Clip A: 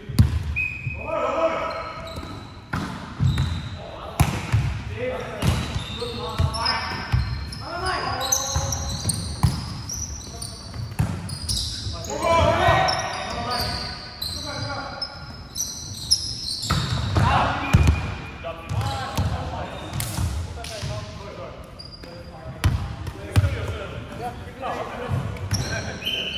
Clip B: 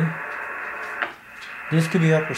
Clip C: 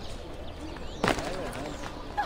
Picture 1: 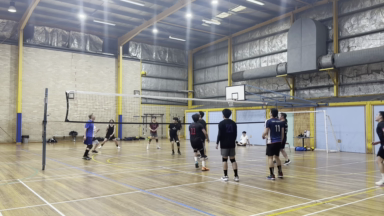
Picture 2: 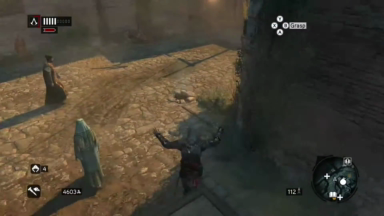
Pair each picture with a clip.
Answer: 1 A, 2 C